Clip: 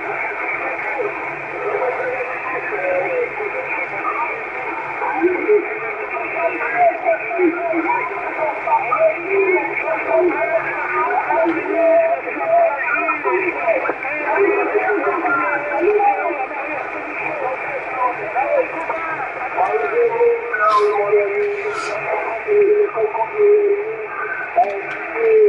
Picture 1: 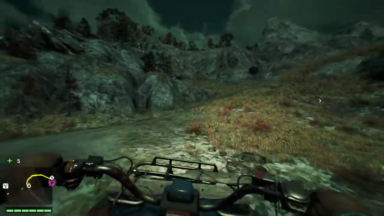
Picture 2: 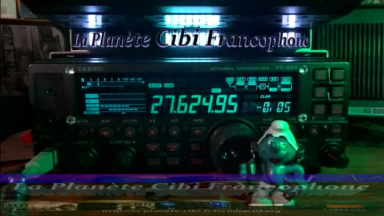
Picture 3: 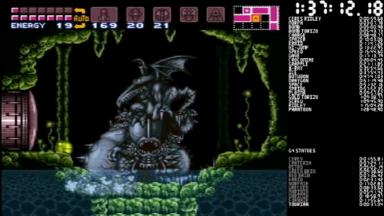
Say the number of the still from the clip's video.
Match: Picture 2